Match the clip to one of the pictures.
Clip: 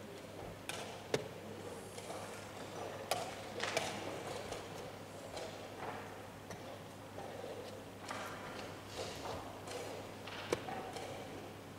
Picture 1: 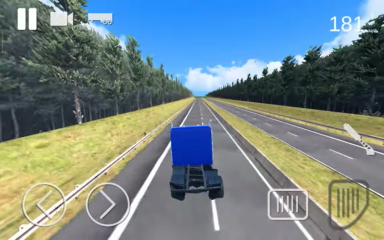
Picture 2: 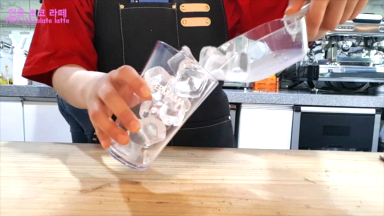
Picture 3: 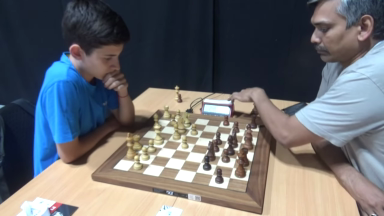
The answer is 3